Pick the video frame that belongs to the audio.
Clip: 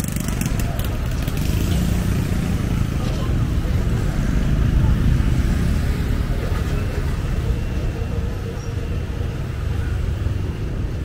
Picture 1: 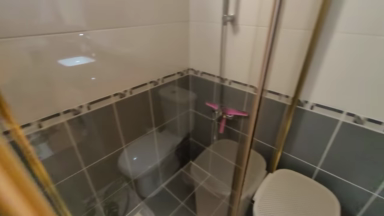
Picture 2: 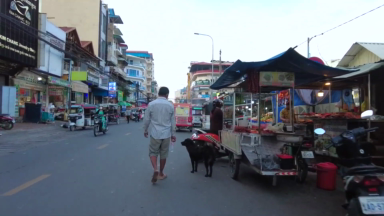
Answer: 2